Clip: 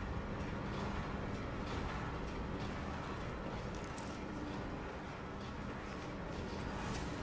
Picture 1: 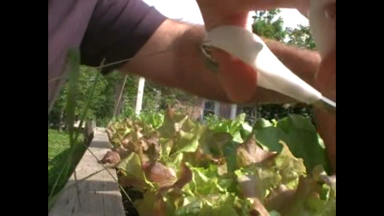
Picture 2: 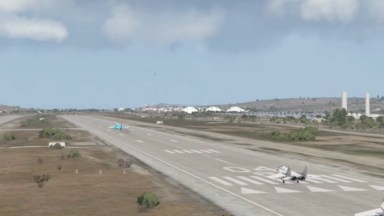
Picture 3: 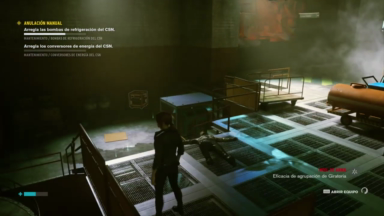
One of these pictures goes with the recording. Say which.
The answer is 3